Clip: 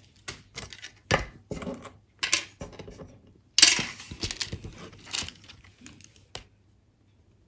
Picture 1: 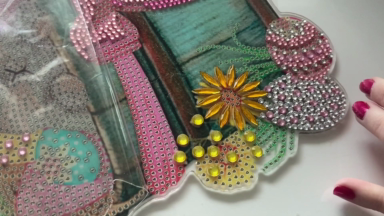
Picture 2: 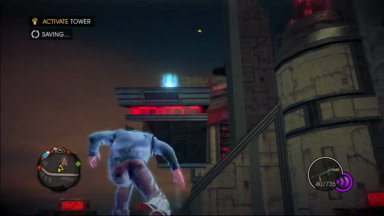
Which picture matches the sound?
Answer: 1